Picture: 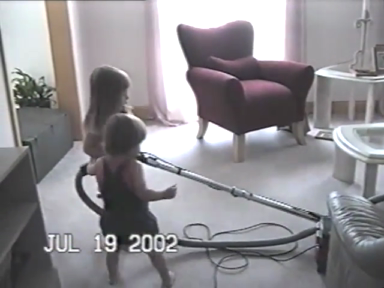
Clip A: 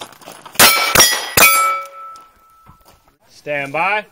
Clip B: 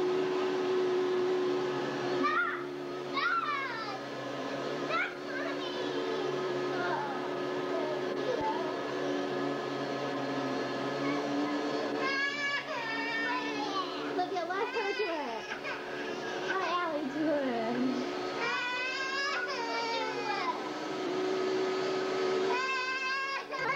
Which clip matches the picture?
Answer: B